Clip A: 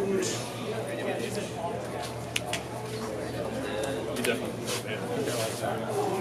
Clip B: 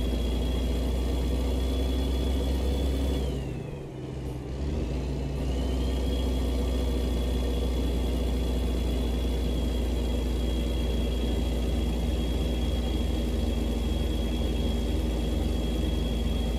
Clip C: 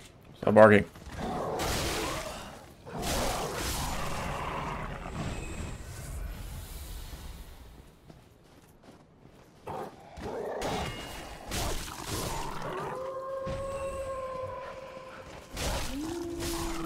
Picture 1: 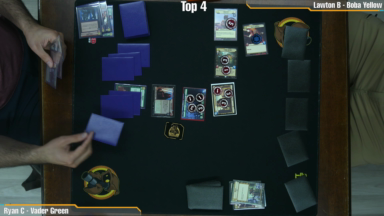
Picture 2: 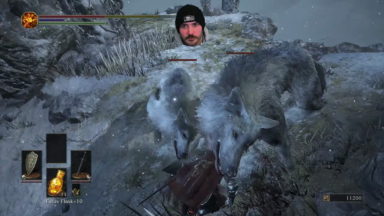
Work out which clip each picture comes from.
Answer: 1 A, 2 C